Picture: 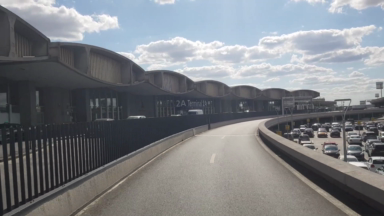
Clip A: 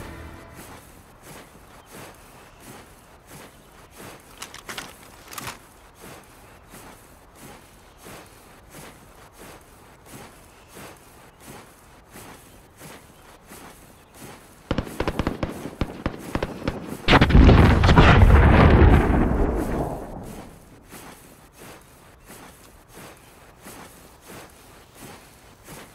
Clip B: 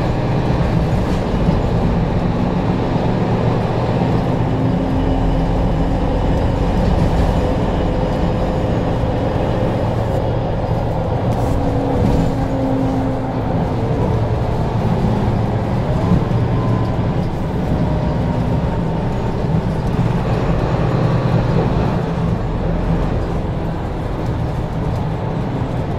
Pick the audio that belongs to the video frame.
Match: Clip B